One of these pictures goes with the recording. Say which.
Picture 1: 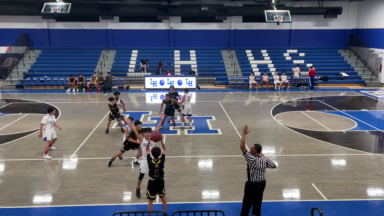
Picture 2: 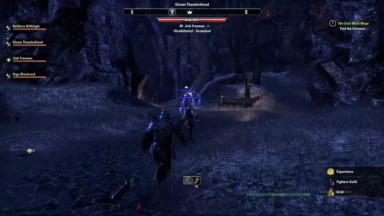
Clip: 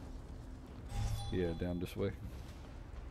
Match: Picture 2